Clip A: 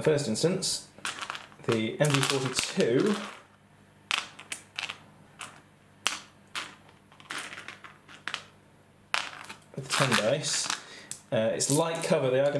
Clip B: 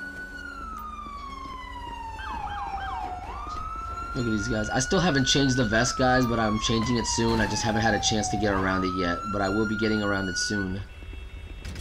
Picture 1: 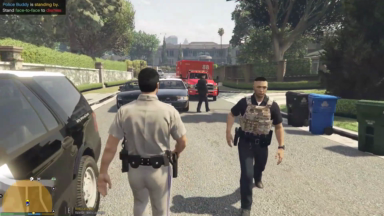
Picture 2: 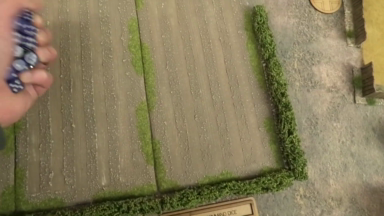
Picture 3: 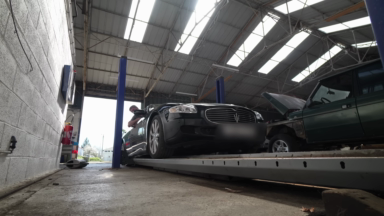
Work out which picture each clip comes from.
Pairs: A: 2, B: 1